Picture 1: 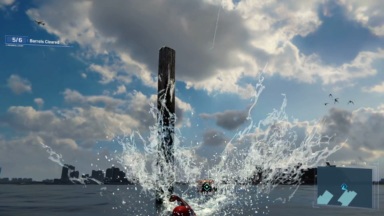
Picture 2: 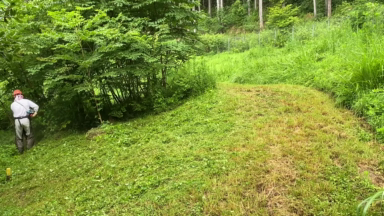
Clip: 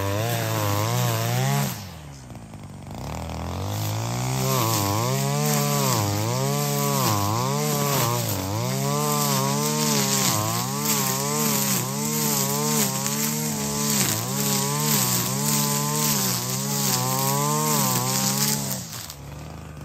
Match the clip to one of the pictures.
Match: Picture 2